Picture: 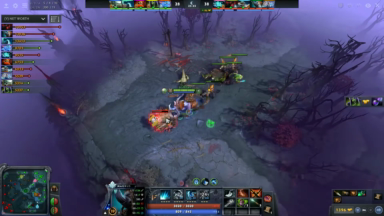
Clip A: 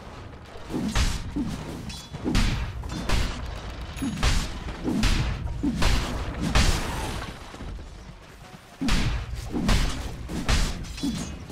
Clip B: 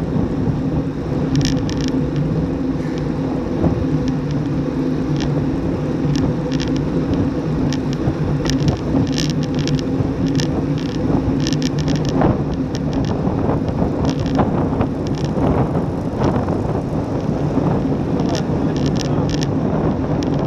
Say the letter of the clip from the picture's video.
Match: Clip A